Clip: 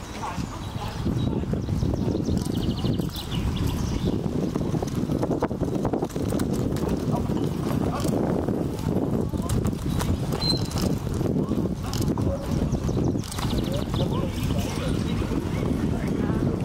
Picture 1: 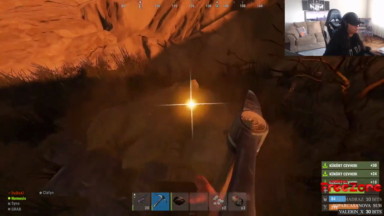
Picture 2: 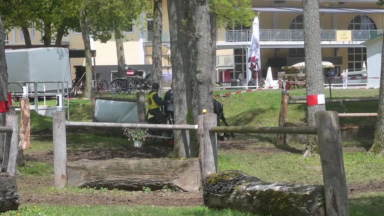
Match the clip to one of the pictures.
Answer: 2